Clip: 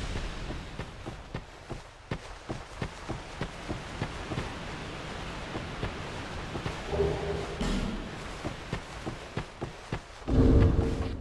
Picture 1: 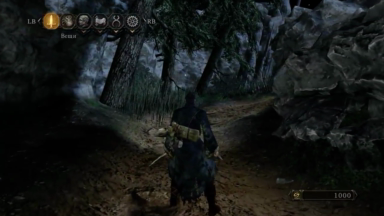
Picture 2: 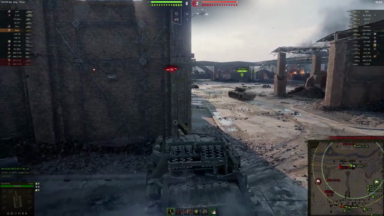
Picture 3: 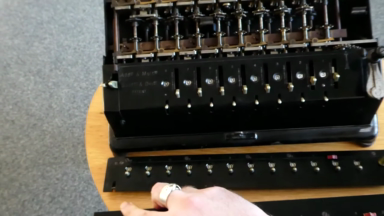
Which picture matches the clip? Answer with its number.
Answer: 1